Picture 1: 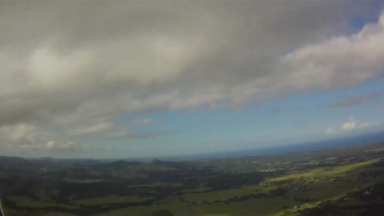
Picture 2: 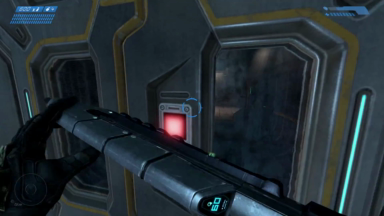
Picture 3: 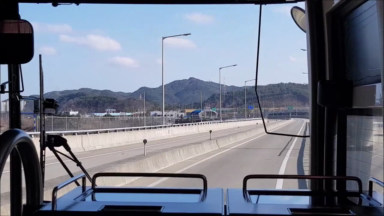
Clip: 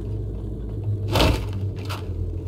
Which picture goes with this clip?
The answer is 2